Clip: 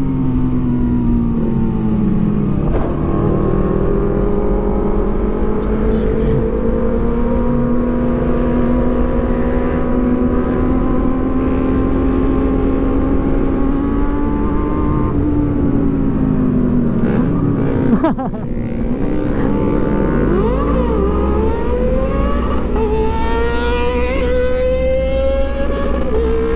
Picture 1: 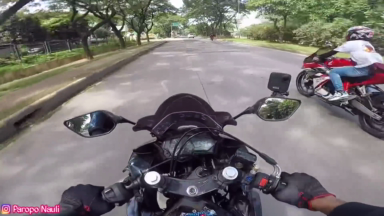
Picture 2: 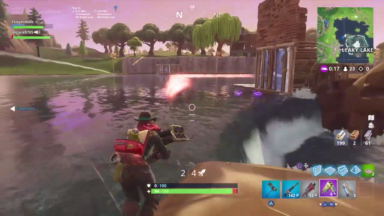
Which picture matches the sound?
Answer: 1